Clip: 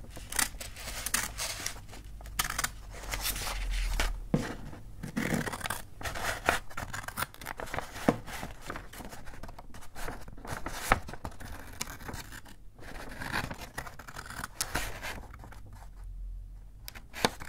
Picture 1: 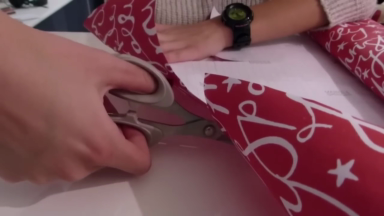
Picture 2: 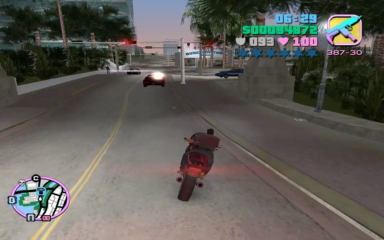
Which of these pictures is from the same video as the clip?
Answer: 1